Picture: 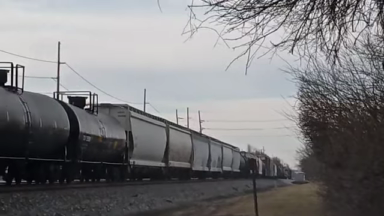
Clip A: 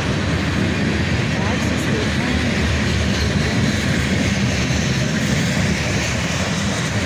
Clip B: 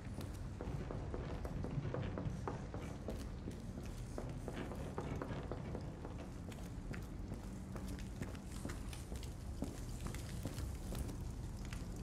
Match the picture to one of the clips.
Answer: A